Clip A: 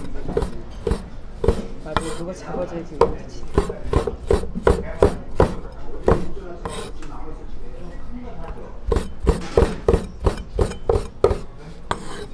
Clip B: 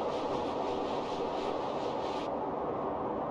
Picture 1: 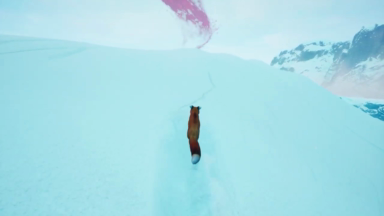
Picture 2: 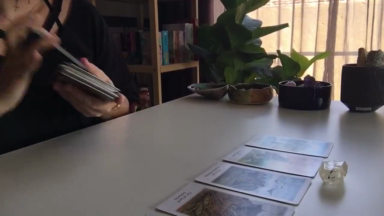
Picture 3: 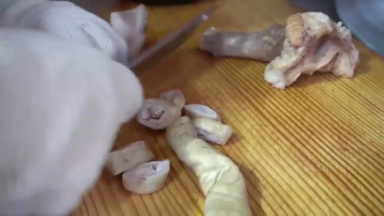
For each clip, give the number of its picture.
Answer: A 3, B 1